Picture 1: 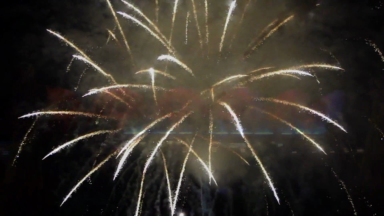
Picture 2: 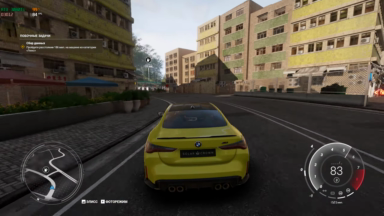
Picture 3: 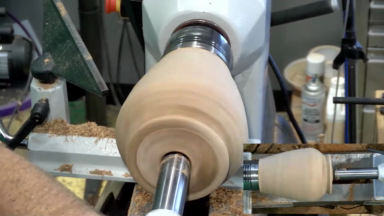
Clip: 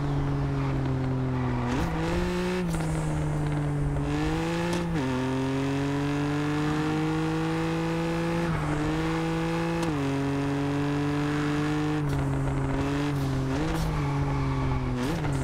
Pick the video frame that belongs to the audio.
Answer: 2